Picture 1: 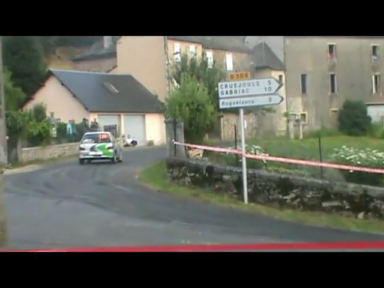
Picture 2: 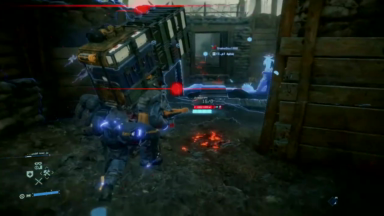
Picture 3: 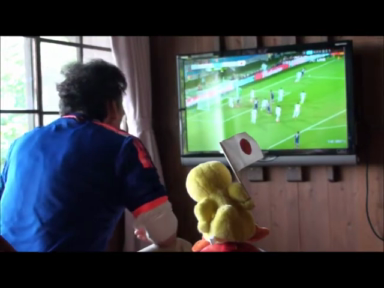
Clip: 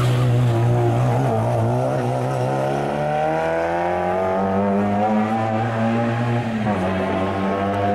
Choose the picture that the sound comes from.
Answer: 1